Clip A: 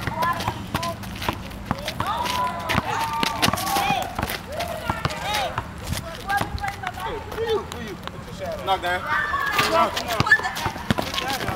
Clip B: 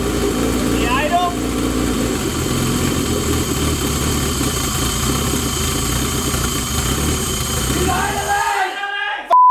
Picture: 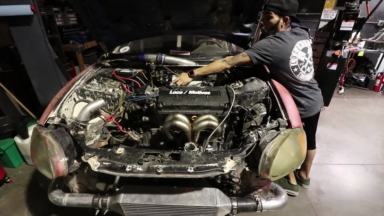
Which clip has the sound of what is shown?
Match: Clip B